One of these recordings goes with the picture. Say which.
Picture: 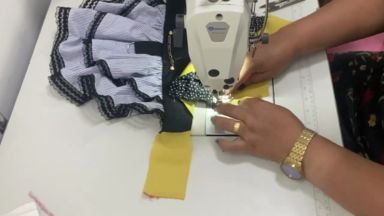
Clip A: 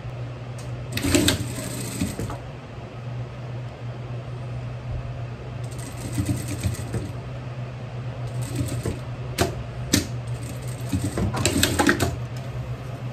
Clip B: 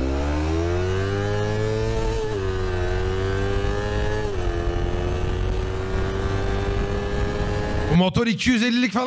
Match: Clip A